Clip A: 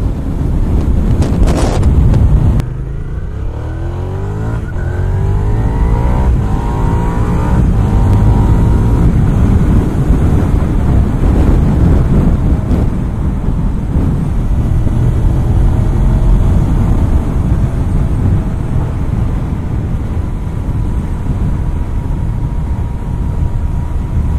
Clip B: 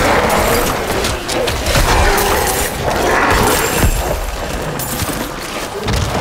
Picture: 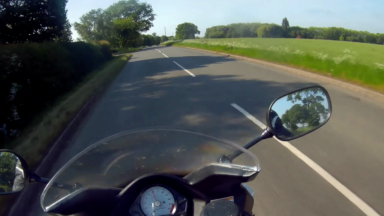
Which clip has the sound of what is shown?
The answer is A